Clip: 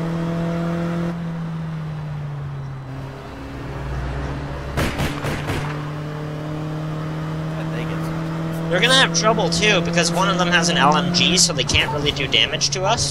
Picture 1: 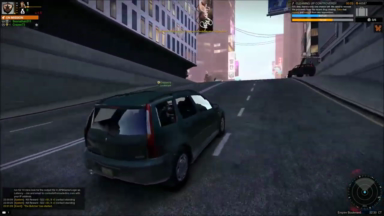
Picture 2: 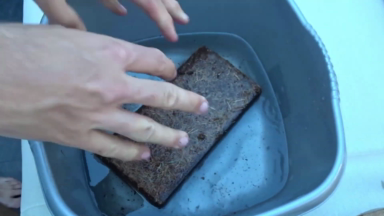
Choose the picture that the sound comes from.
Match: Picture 1